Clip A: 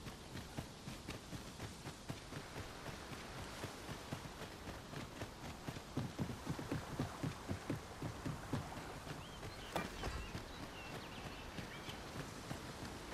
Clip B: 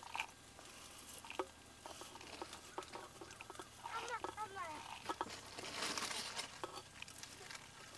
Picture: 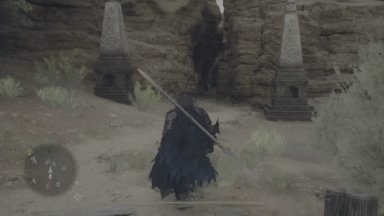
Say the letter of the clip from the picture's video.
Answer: A